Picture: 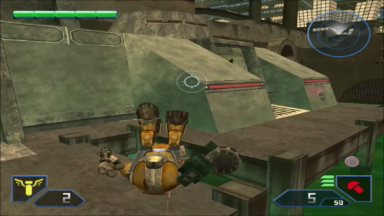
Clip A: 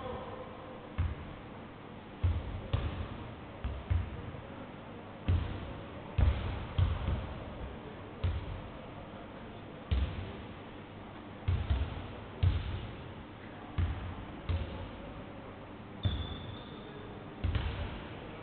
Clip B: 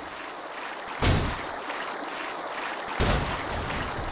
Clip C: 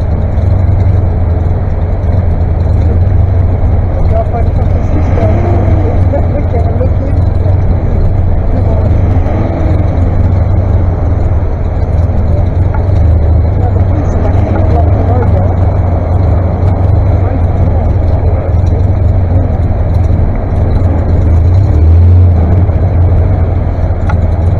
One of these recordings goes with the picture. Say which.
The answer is B